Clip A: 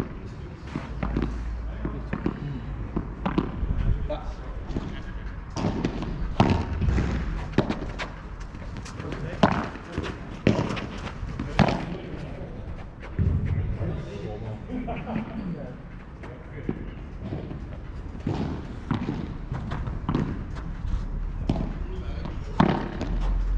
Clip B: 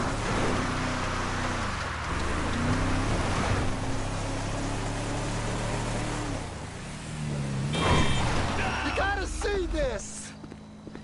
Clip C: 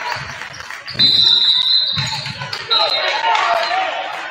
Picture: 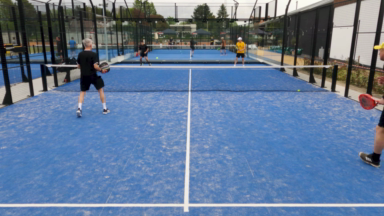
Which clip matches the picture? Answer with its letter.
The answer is A